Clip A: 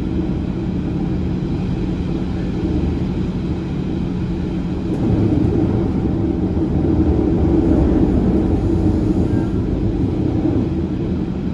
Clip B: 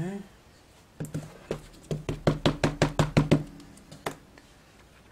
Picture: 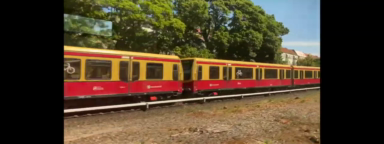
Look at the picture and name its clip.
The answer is A